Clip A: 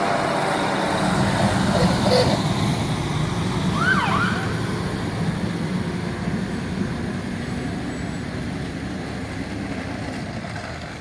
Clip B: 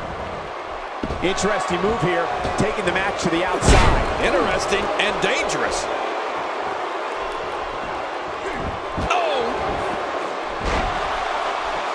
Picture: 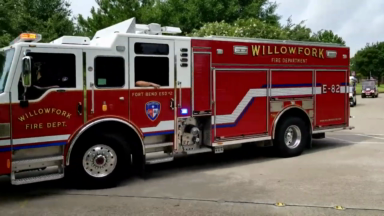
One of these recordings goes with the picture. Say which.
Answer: A